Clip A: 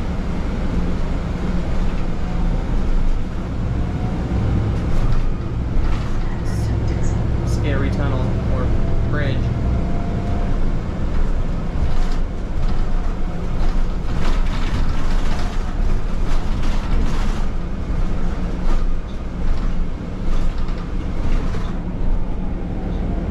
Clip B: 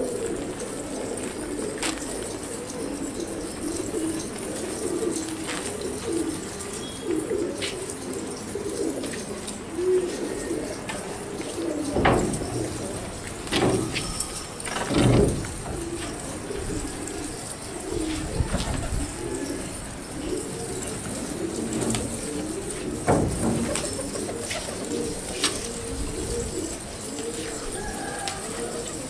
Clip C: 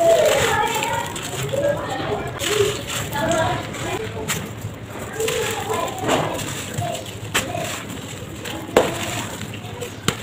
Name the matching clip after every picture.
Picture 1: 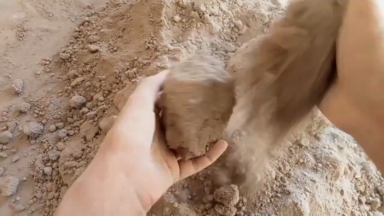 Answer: C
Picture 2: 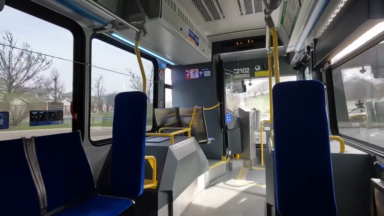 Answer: A